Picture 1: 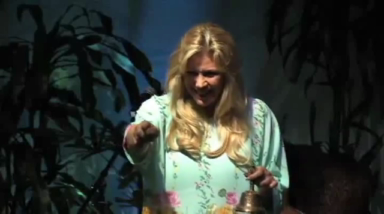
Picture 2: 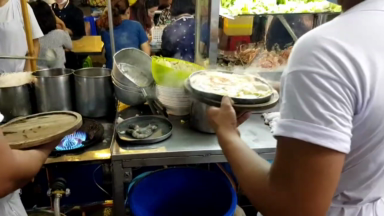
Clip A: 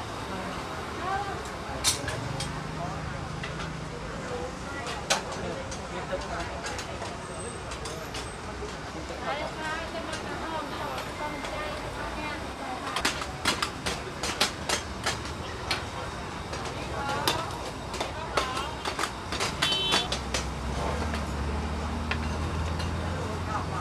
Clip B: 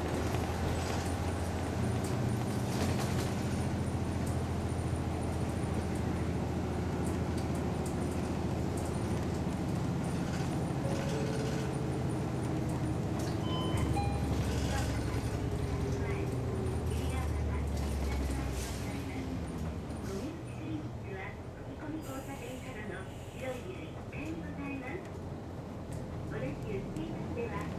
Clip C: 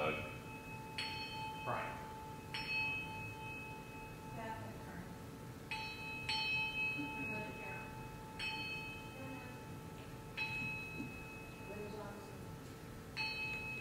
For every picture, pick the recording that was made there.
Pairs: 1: C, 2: A